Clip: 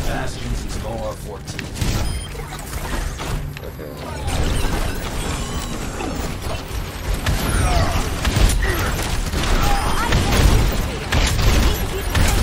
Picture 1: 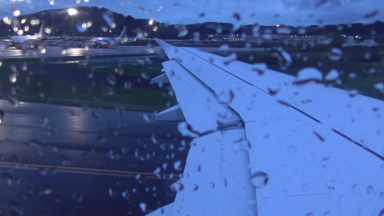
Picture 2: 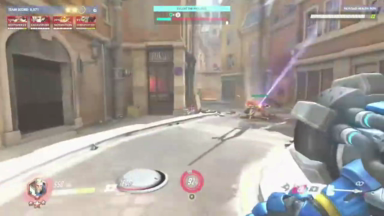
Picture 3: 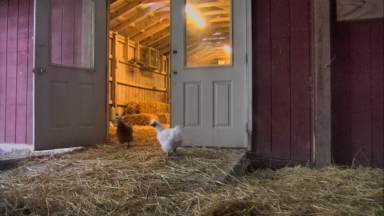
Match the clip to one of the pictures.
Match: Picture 2